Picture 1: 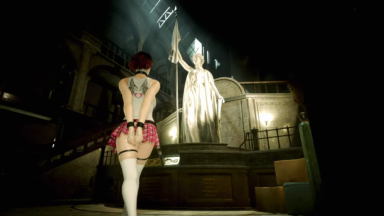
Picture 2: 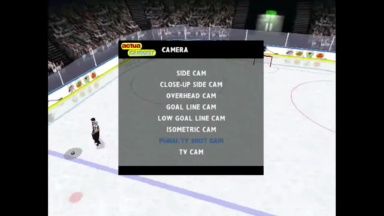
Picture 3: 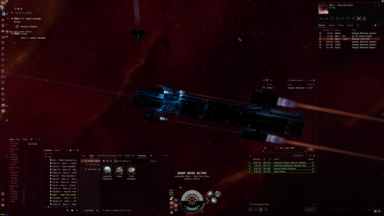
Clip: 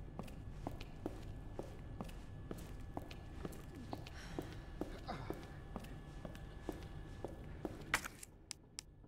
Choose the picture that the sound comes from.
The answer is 1